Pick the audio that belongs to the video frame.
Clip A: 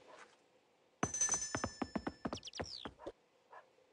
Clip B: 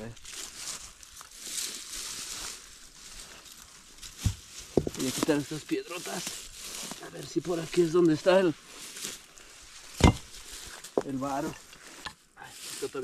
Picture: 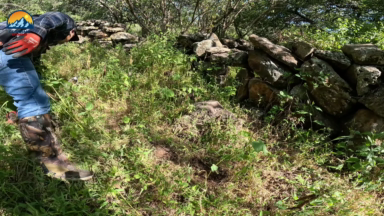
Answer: B